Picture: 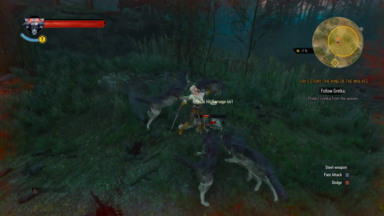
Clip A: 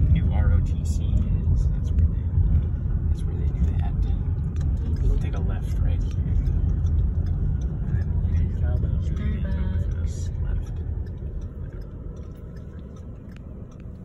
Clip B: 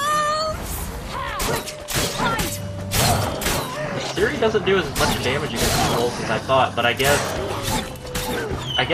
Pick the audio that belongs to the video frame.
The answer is B